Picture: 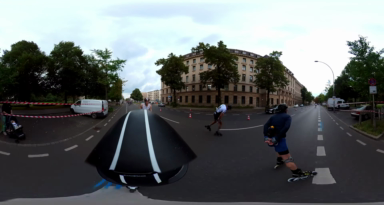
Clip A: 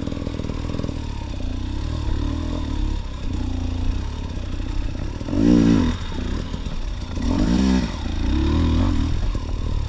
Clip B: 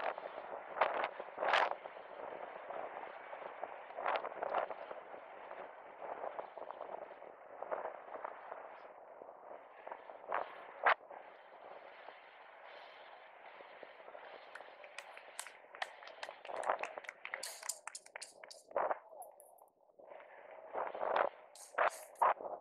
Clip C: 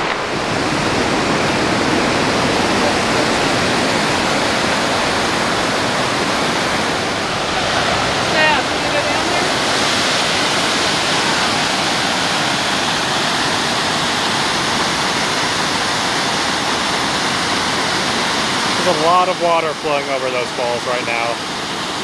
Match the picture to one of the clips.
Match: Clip B